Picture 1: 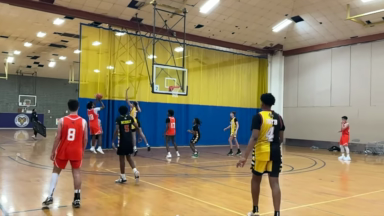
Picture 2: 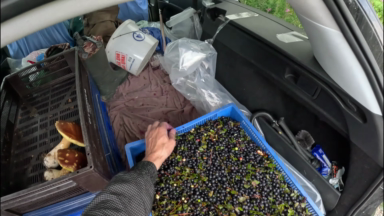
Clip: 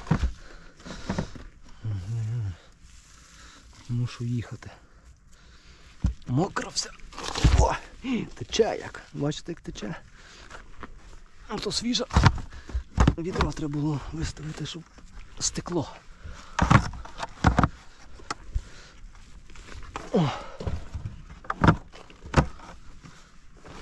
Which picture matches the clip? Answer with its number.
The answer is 2